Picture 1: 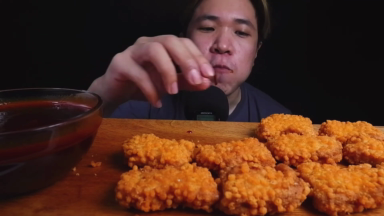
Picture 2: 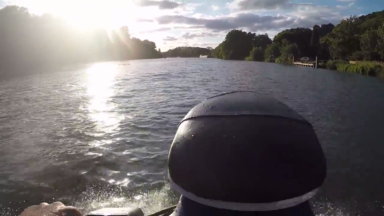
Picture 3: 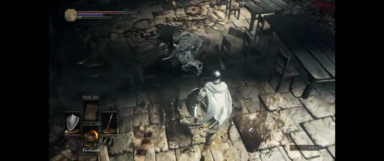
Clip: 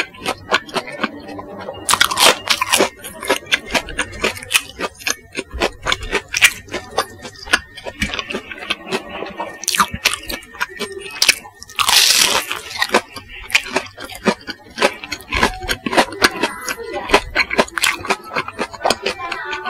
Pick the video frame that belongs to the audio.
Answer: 1